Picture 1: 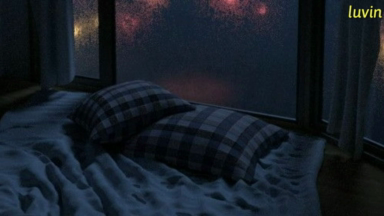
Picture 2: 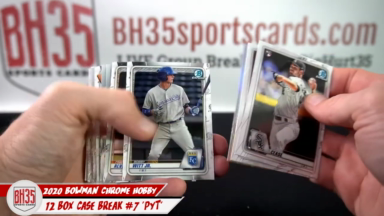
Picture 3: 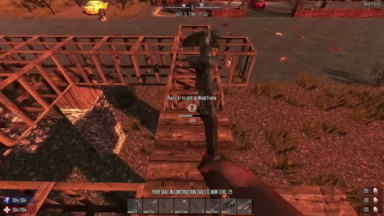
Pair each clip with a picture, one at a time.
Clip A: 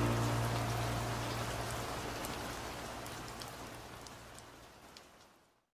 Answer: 1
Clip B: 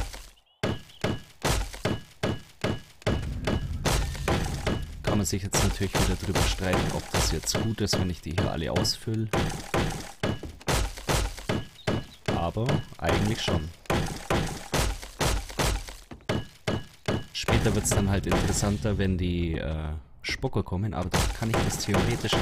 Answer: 3